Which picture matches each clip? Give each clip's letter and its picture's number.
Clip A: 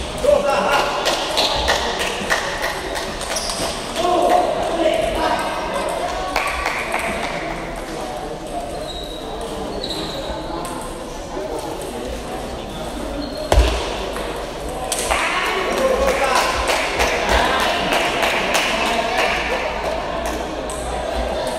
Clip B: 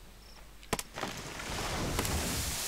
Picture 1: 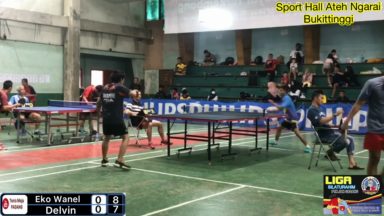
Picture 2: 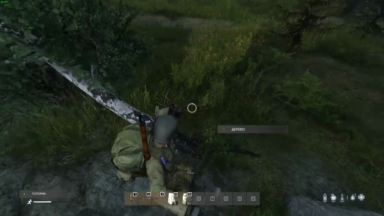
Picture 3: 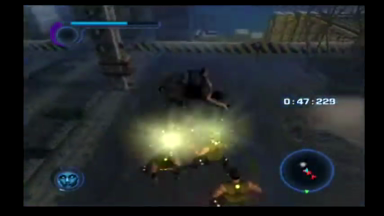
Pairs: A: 1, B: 2